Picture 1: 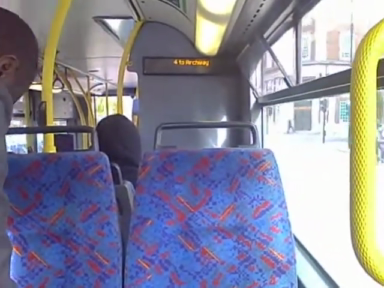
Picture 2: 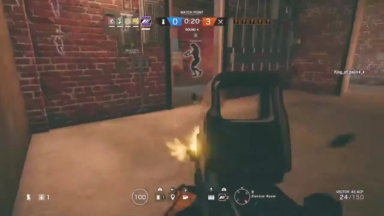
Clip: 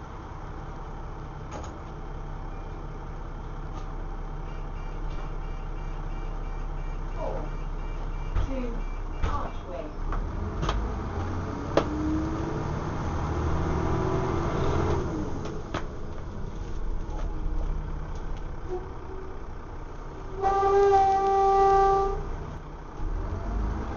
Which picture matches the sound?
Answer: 1